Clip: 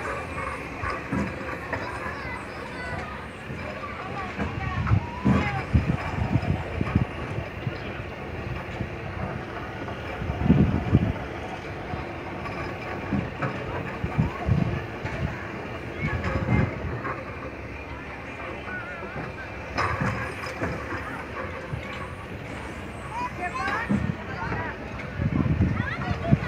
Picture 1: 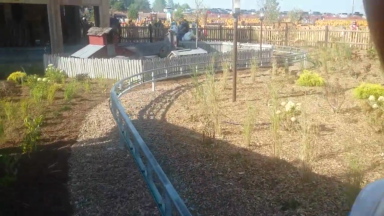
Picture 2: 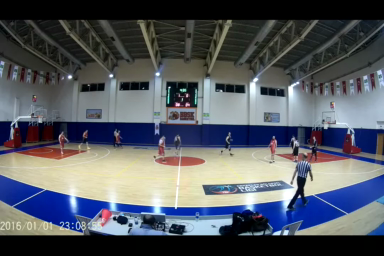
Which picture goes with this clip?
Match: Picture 1